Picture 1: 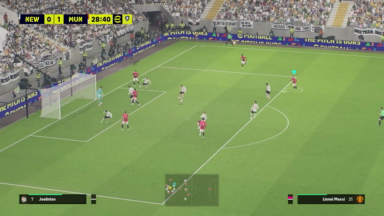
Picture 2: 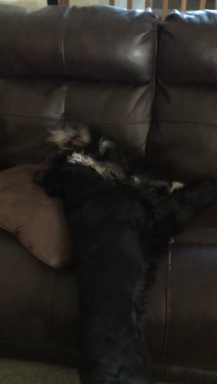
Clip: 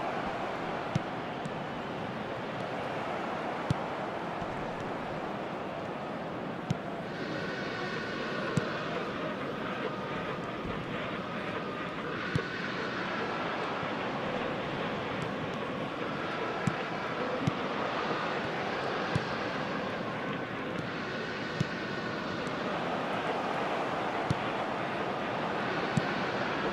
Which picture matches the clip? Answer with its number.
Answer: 1